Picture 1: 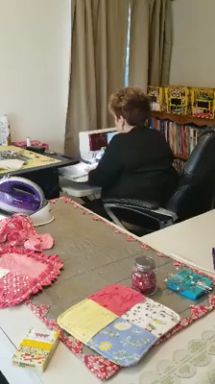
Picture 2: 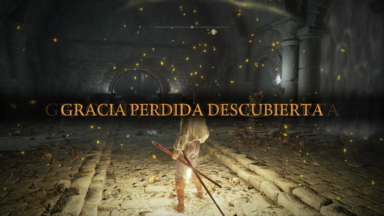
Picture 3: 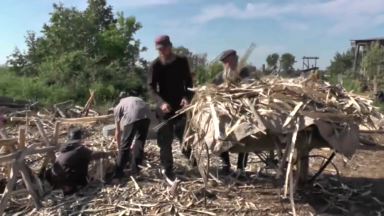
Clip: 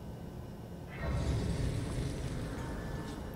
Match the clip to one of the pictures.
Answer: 2